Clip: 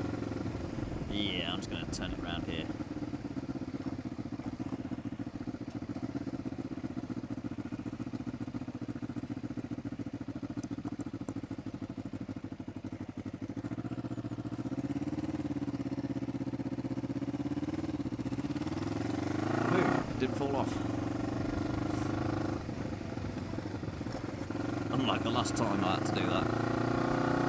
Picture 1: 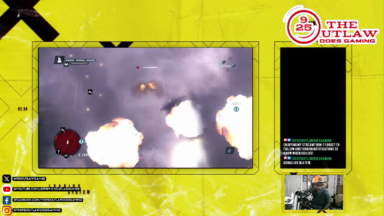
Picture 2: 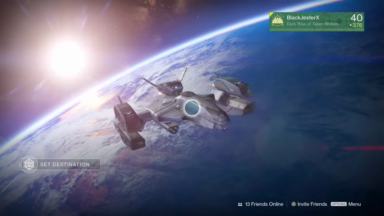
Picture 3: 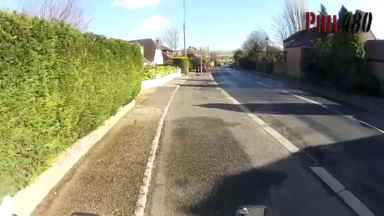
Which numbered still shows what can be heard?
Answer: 3